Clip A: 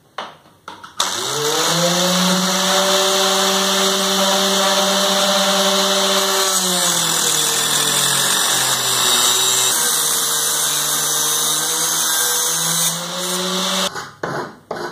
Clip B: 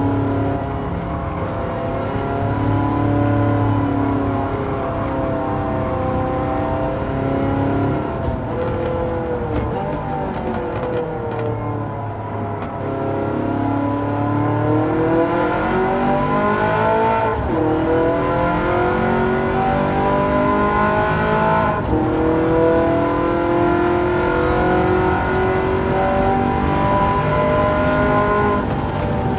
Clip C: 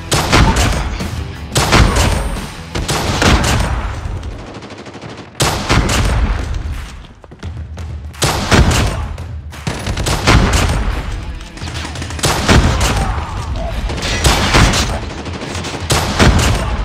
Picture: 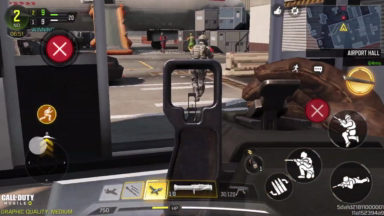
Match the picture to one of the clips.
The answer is C